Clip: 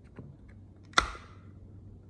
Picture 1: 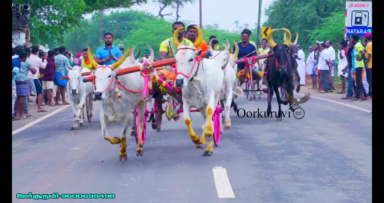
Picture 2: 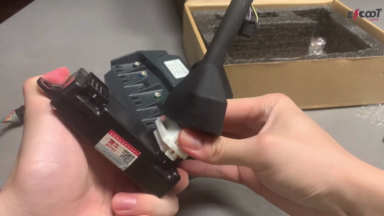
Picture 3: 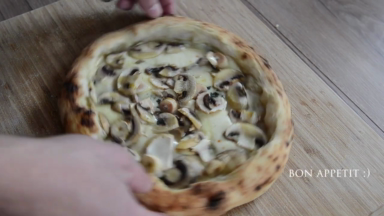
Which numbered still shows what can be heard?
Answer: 2